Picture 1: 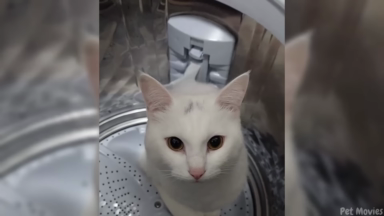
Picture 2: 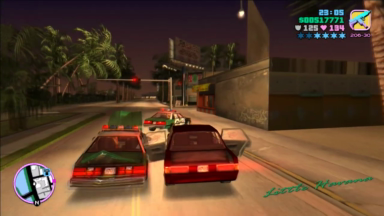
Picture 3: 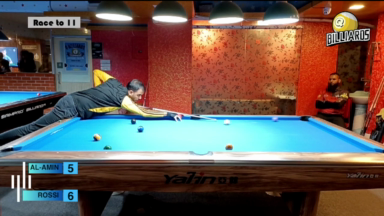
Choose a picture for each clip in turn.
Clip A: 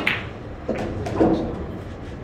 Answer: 3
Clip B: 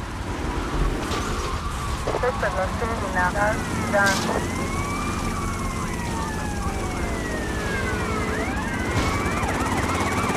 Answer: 2